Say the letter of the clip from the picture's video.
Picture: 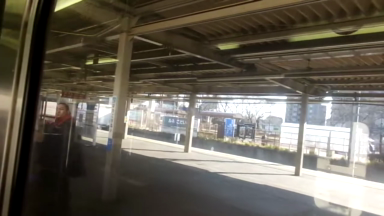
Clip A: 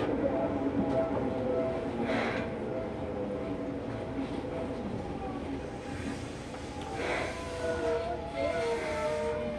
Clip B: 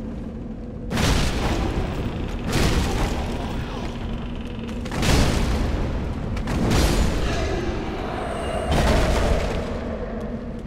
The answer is A